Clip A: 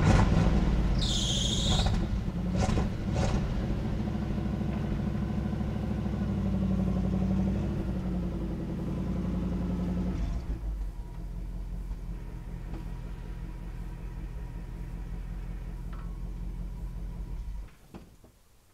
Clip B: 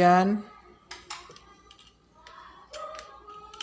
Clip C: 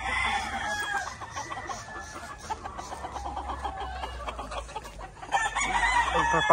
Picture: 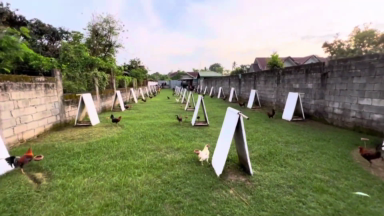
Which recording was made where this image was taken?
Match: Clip C